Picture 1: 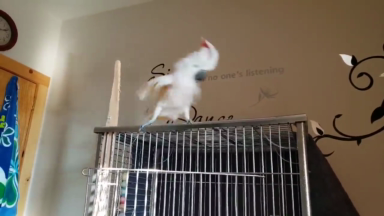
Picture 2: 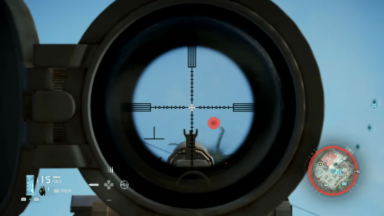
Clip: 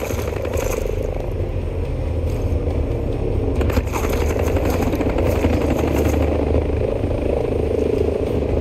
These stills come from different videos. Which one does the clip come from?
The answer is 2